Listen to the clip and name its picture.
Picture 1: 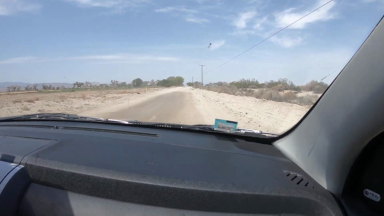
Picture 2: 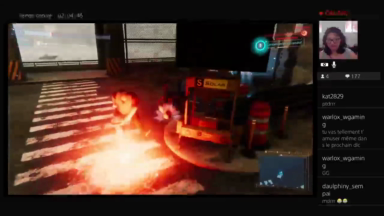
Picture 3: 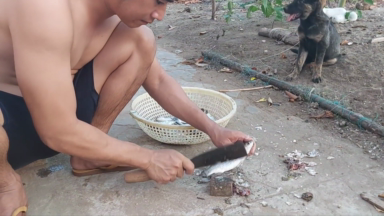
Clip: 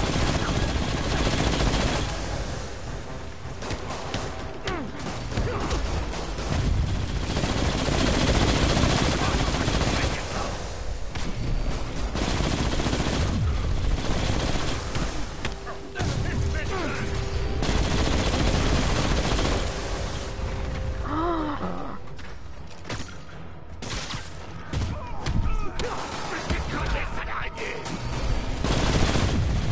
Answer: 2